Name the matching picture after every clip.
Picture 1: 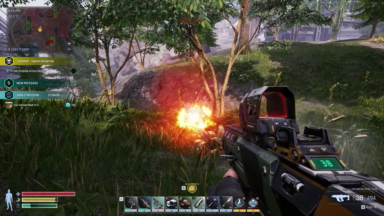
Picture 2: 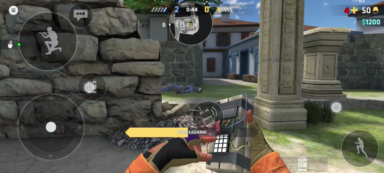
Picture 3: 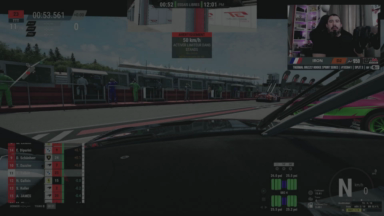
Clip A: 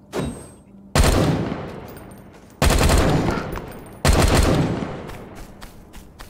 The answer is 1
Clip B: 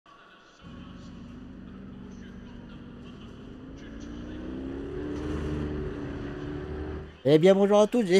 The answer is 3